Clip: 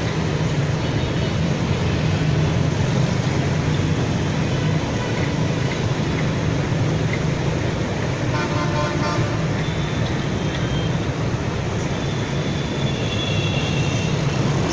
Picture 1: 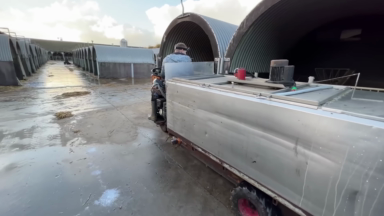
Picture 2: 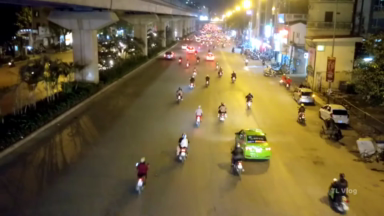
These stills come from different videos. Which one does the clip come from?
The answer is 2